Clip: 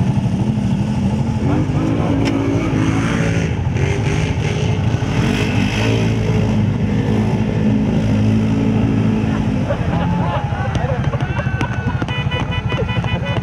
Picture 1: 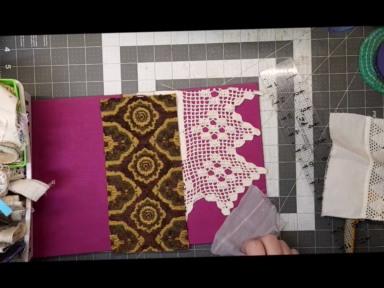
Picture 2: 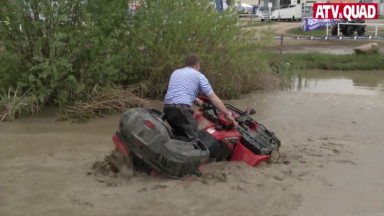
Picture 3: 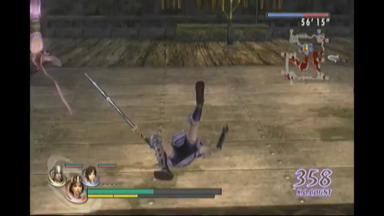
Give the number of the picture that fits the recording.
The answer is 2